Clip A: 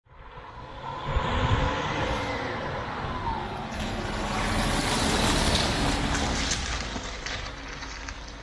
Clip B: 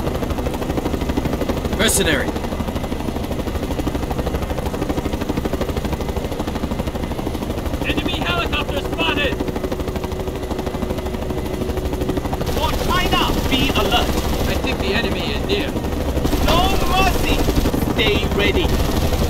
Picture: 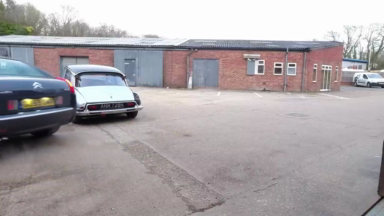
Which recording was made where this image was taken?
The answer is A